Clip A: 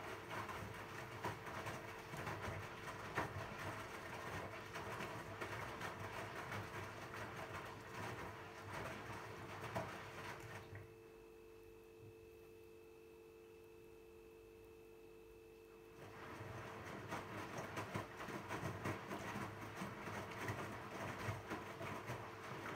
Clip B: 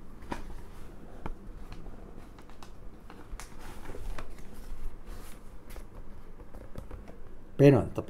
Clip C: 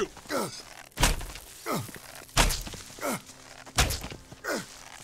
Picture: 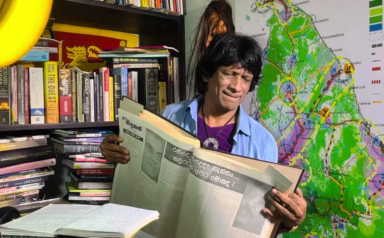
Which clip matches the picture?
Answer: B